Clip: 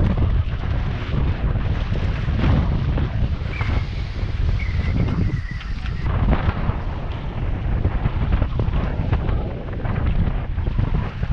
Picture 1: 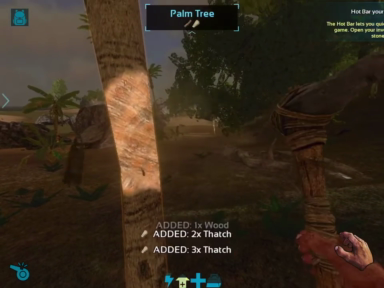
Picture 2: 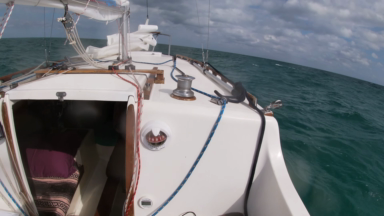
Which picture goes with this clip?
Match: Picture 2